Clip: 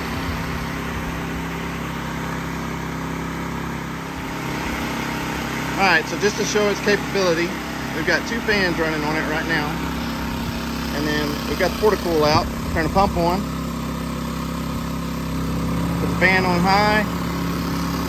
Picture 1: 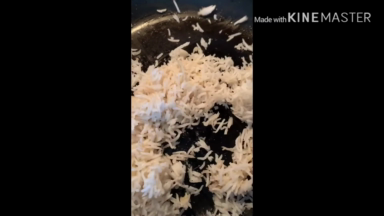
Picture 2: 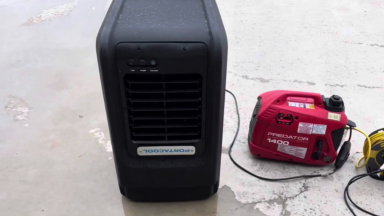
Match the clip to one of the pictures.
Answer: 2